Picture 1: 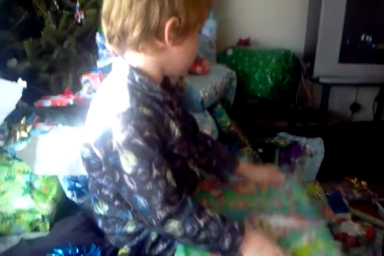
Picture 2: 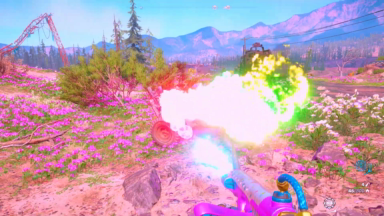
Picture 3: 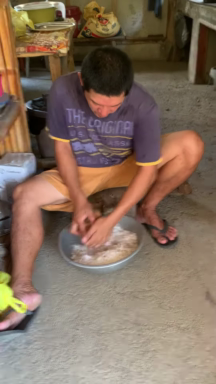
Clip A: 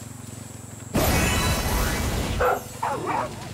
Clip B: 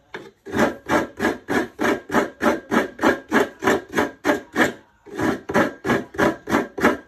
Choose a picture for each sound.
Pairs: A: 2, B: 3